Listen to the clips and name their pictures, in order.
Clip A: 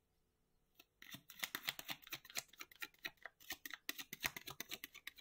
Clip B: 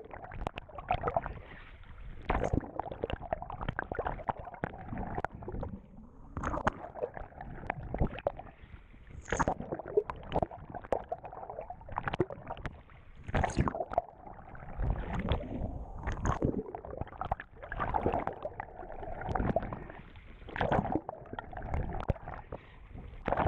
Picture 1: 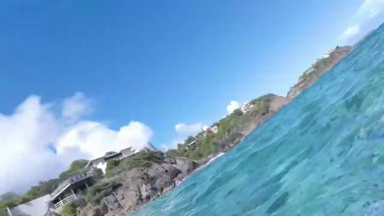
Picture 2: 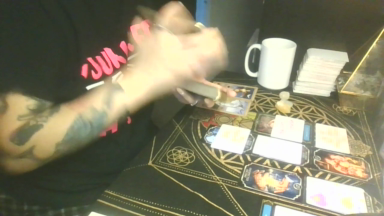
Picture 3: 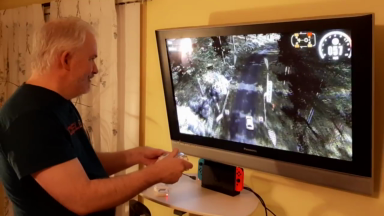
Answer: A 2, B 1